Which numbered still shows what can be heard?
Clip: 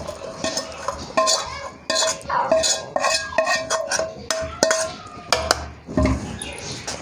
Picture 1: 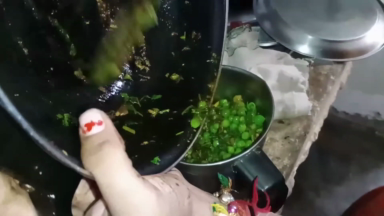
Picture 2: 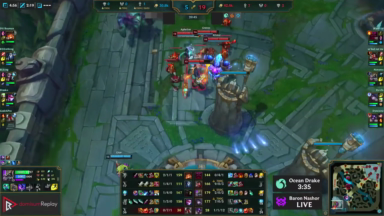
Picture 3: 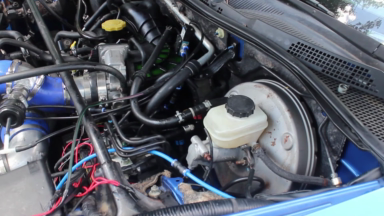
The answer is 1